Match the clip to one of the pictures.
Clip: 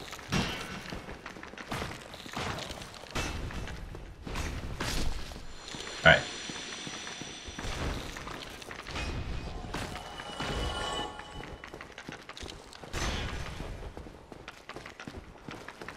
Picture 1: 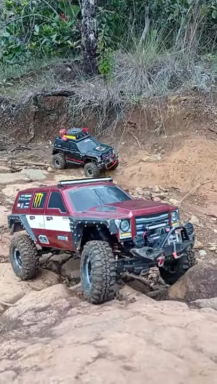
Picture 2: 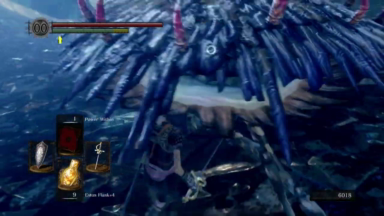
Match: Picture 2